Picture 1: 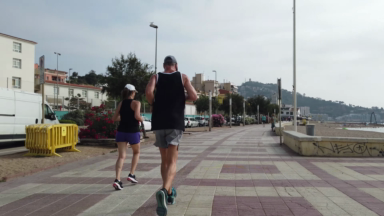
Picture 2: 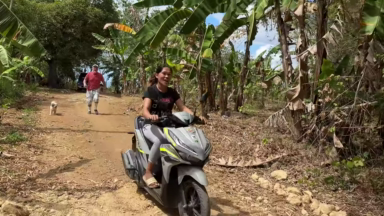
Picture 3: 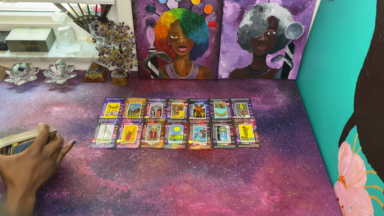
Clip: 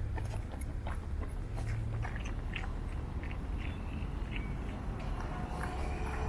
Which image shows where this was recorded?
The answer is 1